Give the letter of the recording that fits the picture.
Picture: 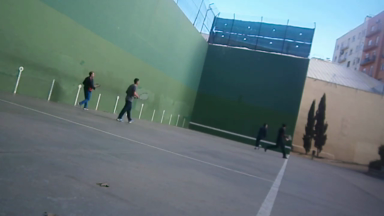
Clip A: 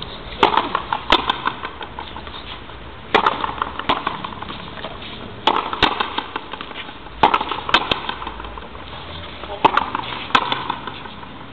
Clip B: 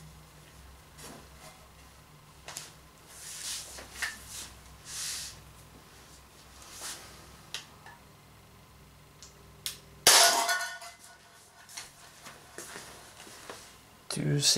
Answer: A